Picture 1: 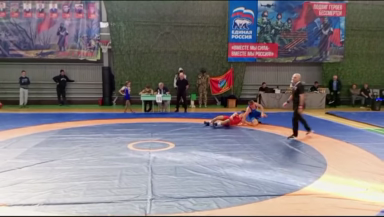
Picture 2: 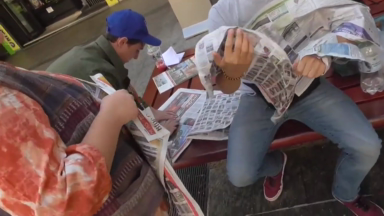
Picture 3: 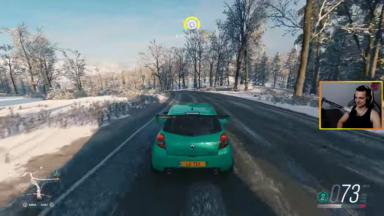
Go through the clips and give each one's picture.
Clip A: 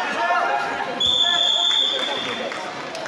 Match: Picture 1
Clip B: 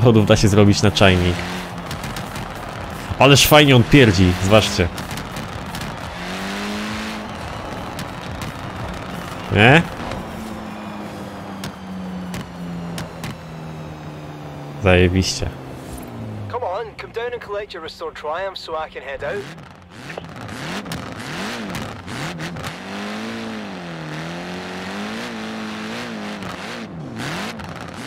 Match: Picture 3